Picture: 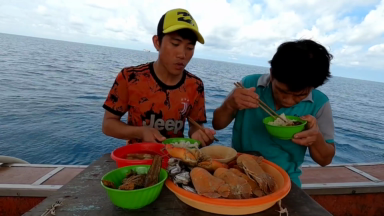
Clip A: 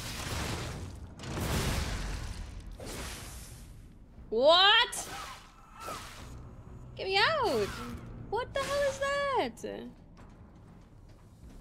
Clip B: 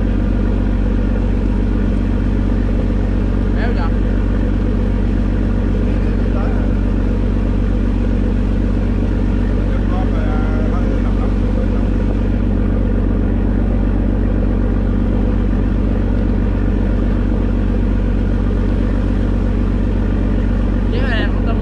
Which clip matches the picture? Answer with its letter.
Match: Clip B